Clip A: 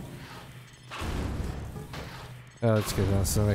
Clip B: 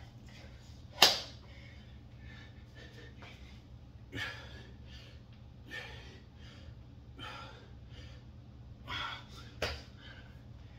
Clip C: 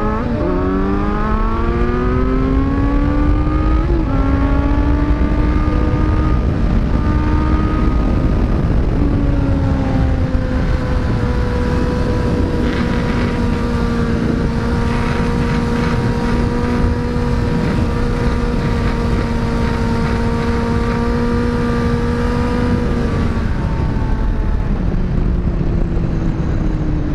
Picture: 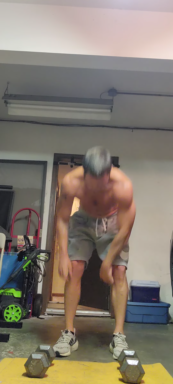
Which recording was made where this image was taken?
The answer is B